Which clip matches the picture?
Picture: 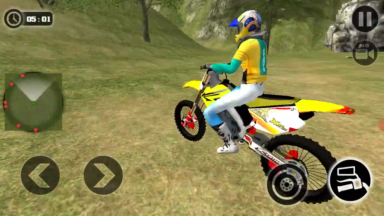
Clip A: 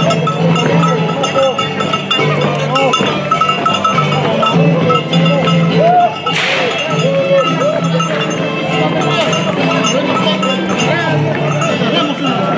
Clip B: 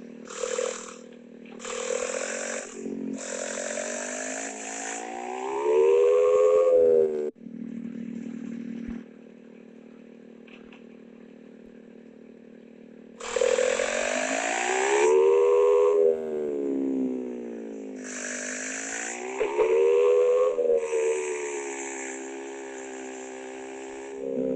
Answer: B